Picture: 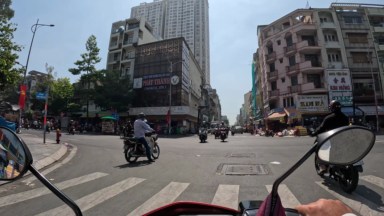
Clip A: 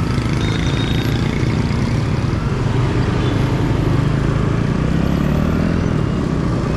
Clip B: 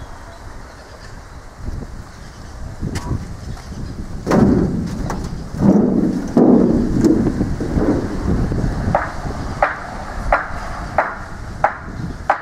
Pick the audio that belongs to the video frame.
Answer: A